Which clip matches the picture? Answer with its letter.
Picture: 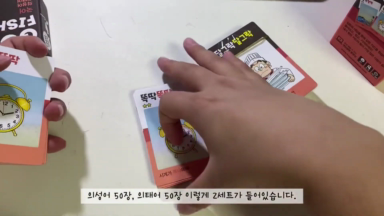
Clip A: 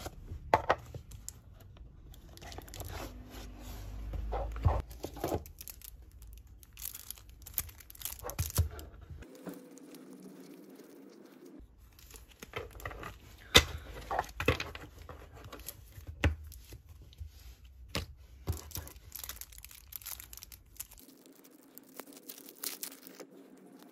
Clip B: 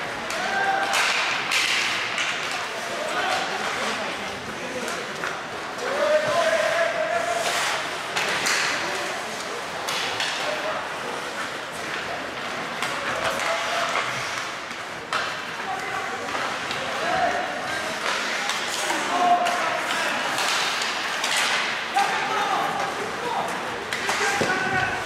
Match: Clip A